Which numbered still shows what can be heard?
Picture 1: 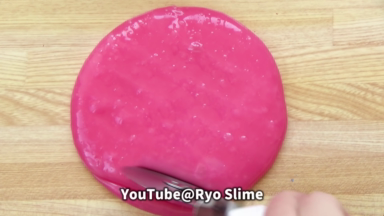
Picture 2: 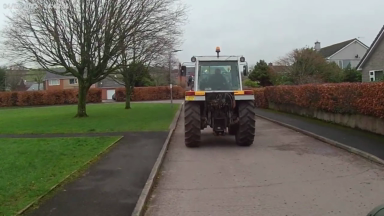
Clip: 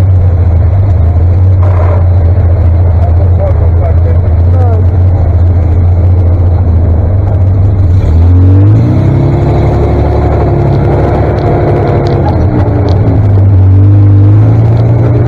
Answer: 2